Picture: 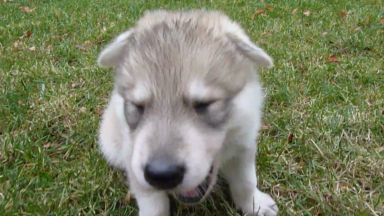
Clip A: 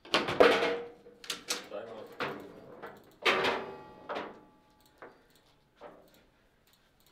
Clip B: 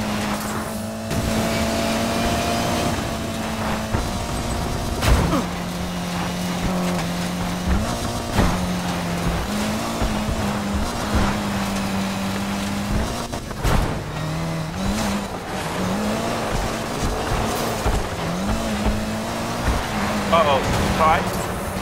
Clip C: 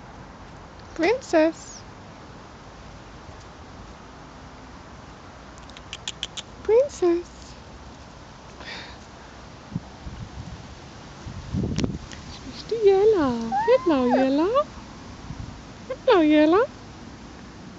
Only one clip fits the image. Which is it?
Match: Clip C